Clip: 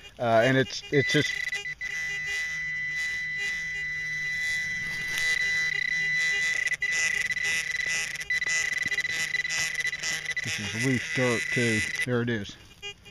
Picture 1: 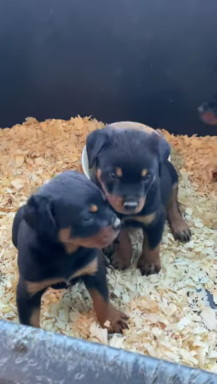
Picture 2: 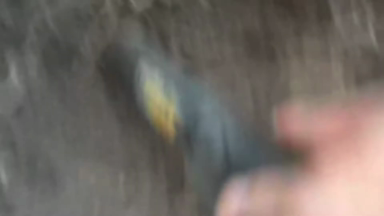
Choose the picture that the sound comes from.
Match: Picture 2